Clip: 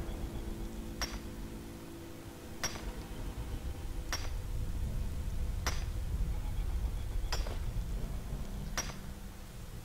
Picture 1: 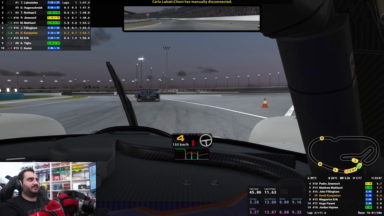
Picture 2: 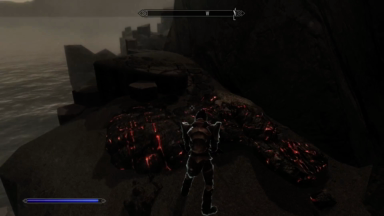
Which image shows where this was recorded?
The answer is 2